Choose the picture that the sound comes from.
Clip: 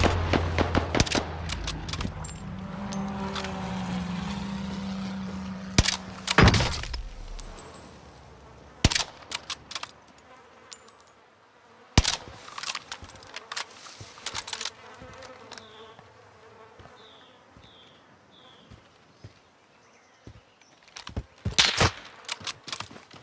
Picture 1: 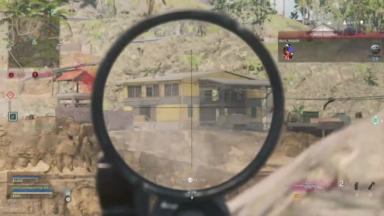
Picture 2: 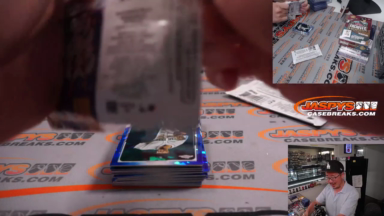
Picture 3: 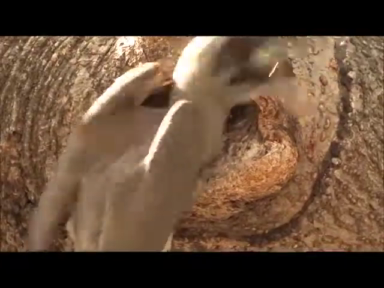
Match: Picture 1